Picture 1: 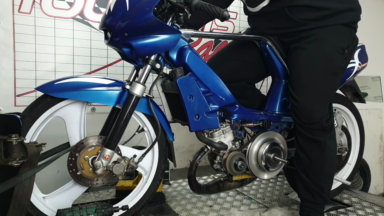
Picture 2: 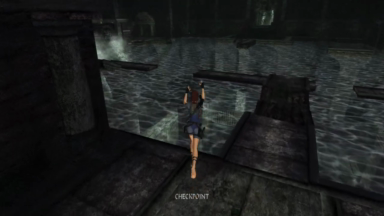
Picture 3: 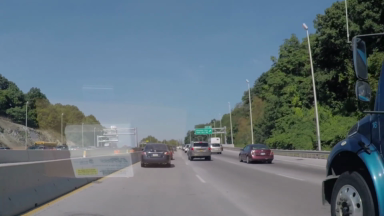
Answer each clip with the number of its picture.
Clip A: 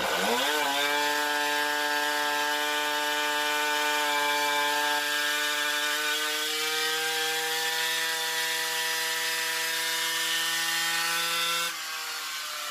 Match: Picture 1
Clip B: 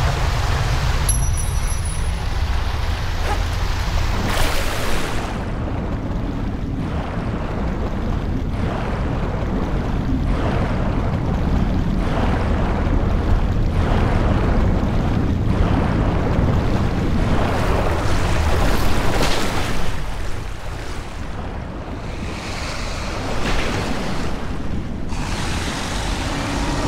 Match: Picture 2